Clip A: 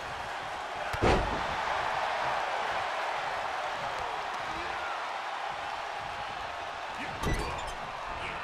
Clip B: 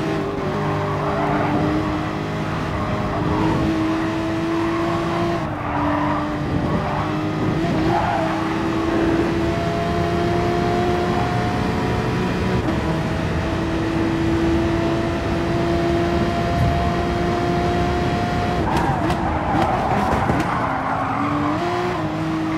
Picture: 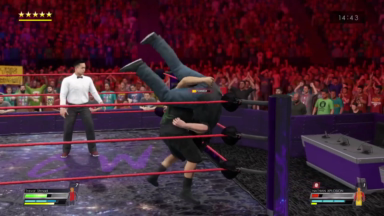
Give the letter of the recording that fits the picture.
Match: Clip A